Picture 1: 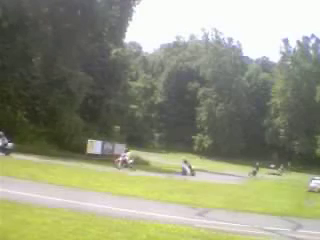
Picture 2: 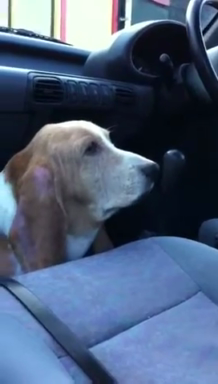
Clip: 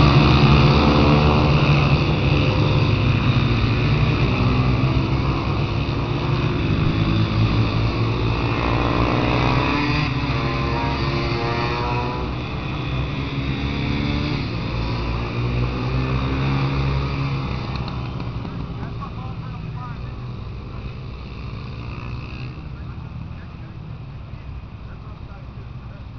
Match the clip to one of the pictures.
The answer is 1